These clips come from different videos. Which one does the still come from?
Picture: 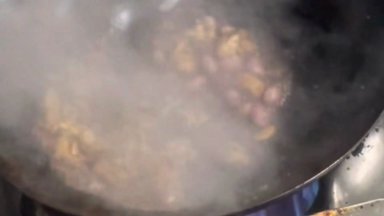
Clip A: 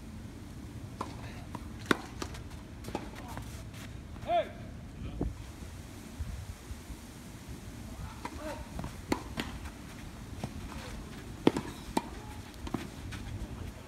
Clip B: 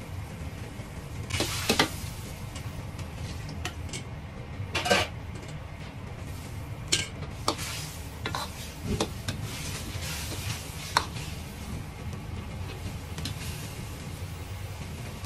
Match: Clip B